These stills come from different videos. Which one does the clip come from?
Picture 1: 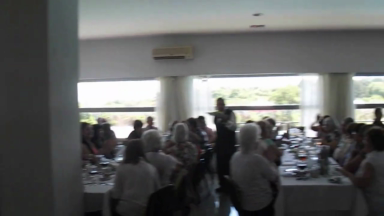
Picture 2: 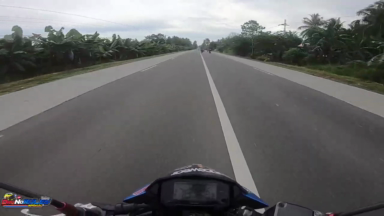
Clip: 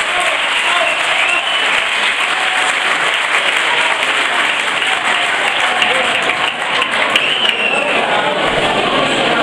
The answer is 1